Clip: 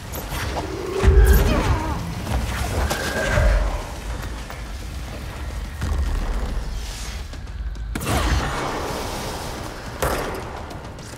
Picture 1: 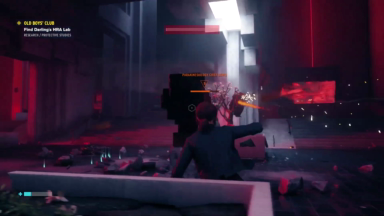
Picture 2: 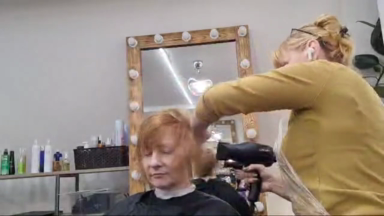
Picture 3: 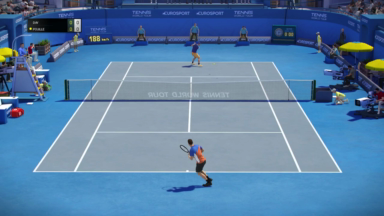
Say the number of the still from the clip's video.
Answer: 1